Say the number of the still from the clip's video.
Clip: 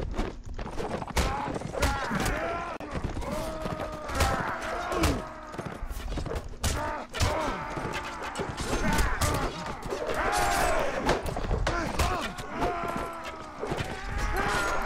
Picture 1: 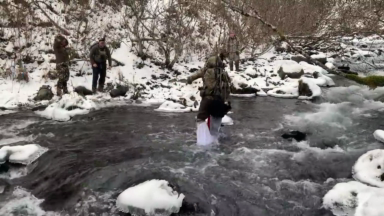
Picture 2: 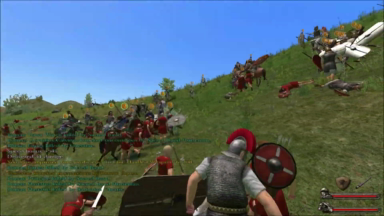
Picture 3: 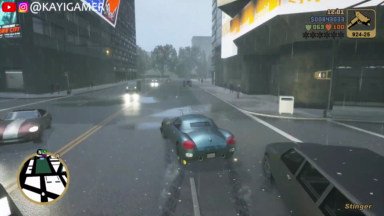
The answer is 2